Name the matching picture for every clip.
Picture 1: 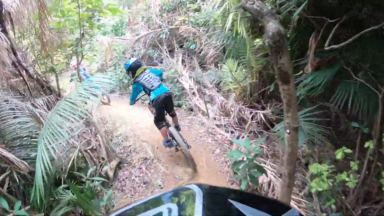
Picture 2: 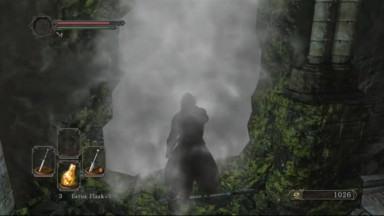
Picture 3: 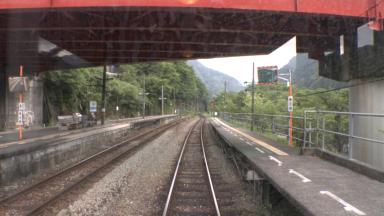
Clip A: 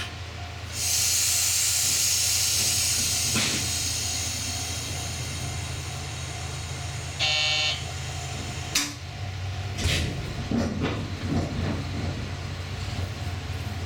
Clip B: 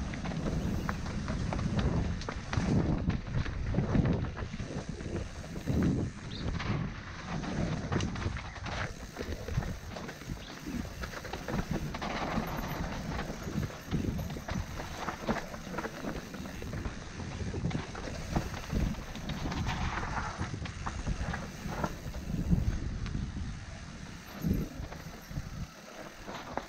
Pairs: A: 3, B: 1